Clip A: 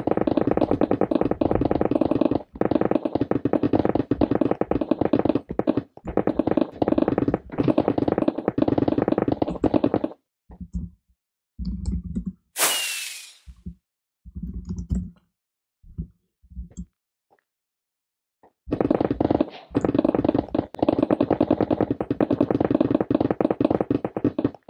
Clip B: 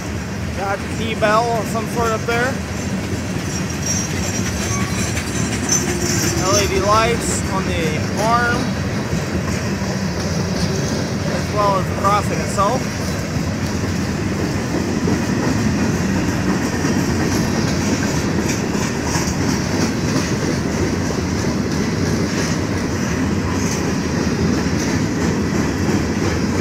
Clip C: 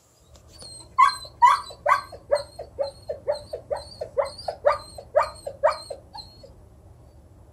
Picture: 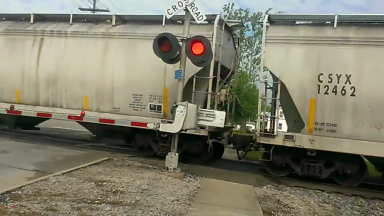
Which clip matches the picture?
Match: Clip B